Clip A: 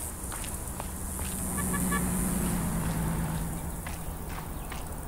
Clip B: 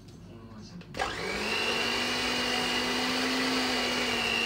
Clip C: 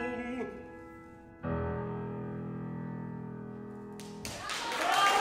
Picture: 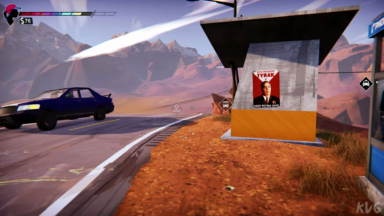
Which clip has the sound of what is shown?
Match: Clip A